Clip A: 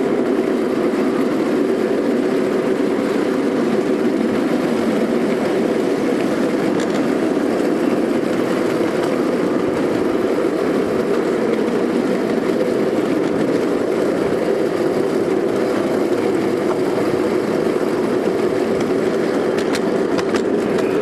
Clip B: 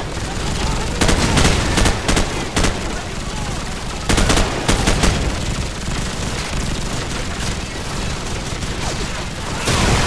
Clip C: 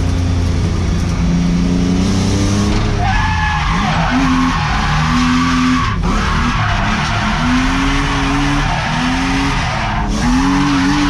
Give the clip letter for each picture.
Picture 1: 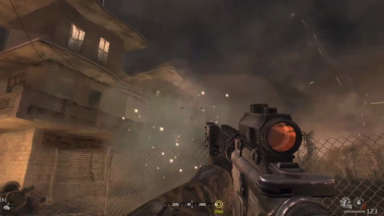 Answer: B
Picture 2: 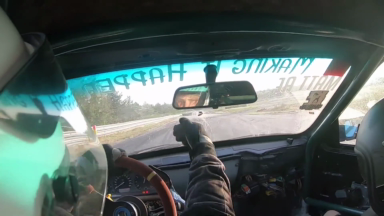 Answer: C